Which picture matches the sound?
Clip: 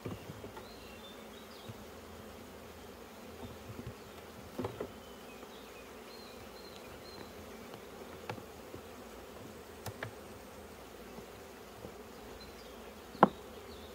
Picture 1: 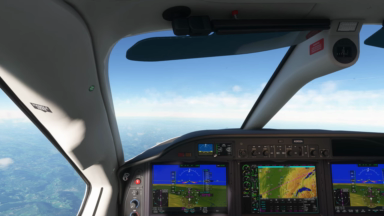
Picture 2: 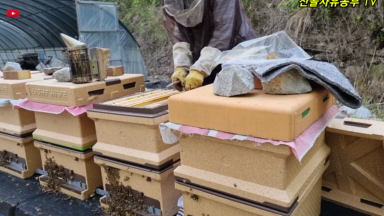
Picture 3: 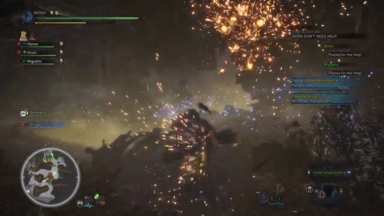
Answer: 2